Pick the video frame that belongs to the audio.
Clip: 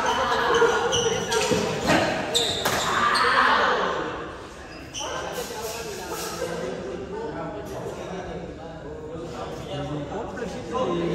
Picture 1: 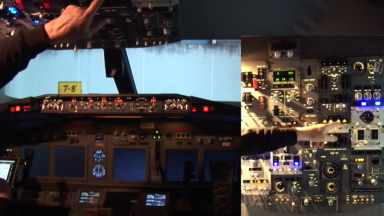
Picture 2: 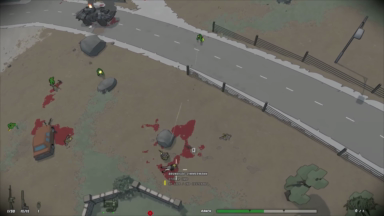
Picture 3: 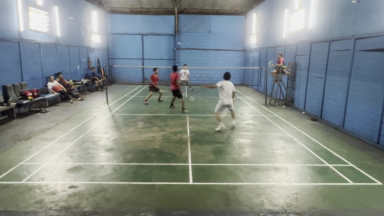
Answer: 3